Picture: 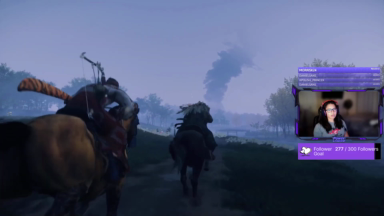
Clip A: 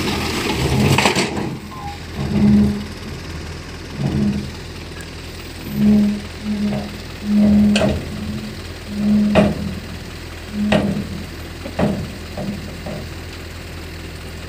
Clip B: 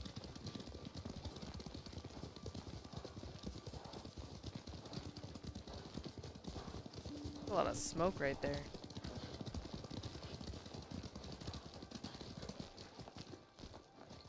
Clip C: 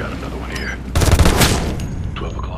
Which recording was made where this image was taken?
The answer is B